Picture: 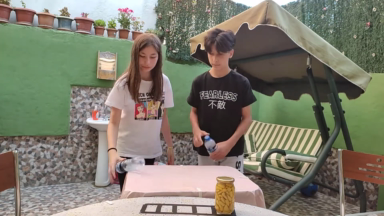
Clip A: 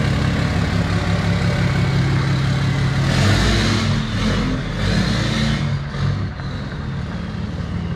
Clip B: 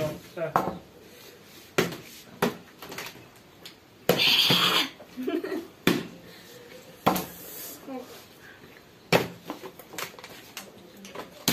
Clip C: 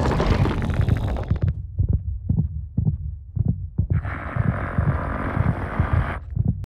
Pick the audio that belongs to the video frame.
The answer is B